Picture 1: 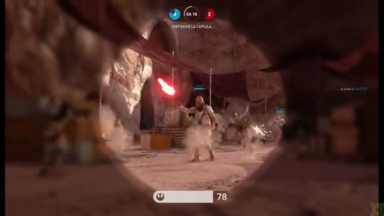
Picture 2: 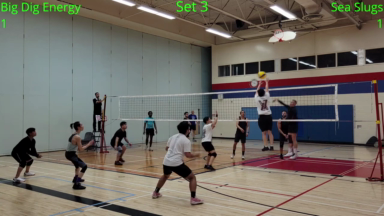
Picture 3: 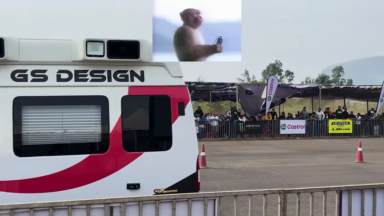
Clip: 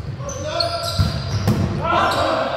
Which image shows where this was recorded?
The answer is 2